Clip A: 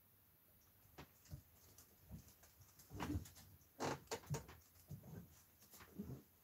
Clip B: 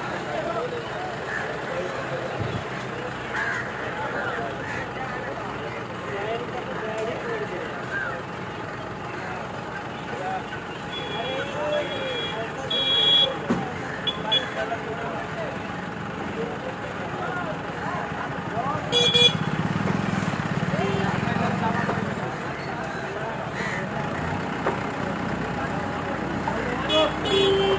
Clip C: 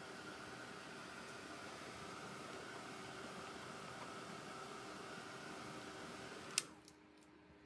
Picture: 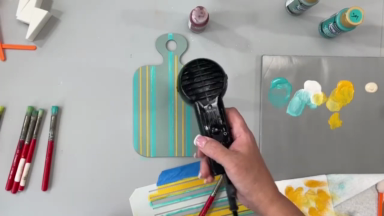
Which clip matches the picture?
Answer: C